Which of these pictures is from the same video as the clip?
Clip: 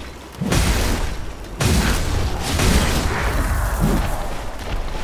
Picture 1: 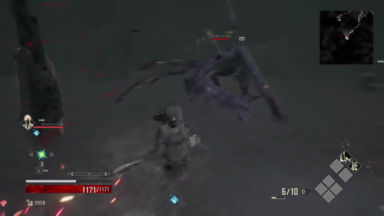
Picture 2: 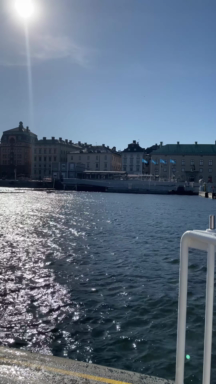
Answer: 1